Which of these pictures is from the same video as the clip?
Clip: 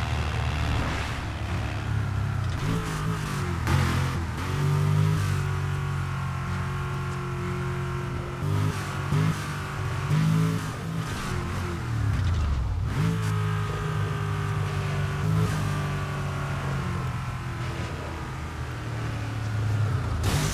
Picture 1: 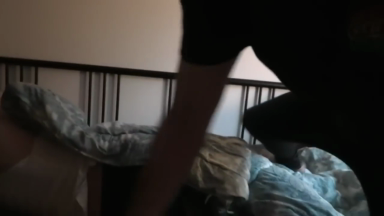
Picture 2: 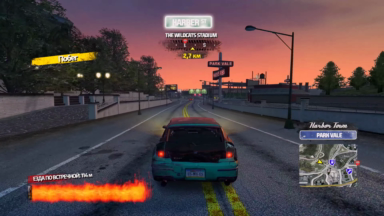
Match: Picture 2